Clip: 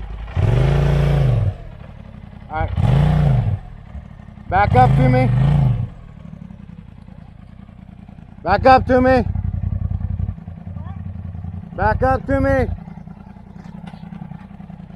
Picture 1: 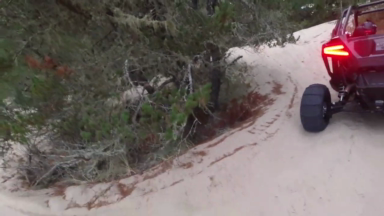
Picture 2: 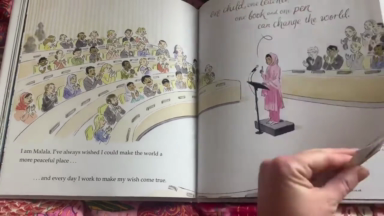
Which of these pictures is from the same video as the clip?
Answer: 1